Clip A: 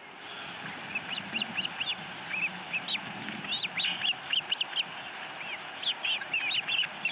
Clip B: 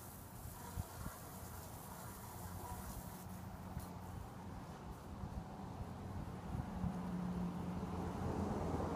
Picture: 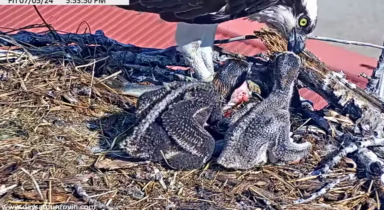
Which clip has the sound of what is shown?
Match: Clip A